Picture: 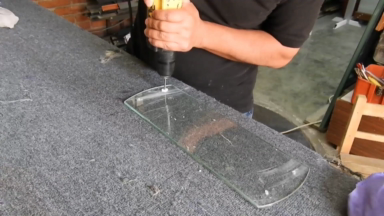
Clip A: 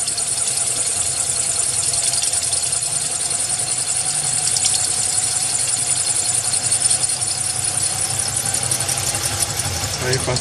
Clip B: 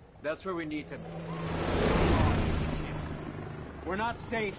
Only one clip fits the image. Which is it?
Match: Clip A